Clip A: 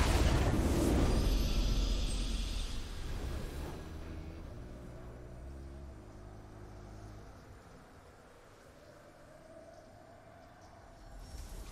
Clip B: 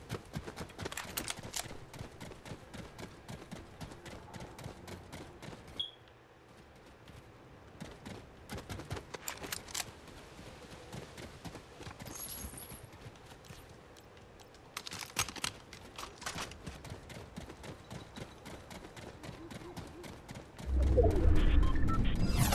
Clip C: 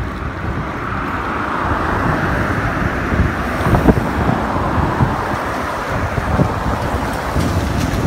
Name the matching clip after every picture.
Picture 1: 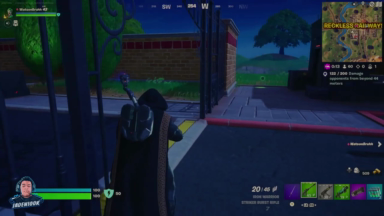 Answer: B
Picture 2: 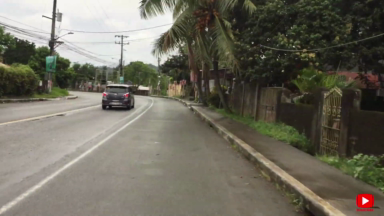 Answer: C